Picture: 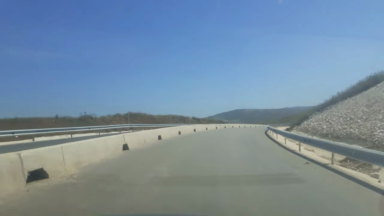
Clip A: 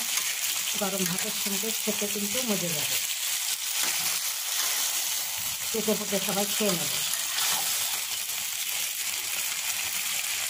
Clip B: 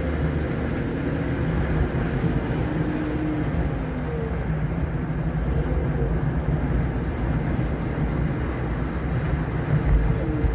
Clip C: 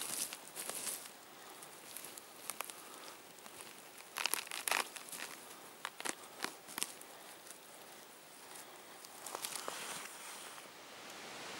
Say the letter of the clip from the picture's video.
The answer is B